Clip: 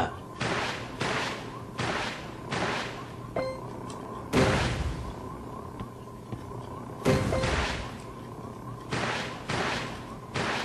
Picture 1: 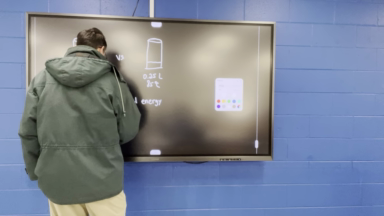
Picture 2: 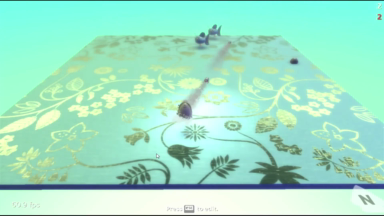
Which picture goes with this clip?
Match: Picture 2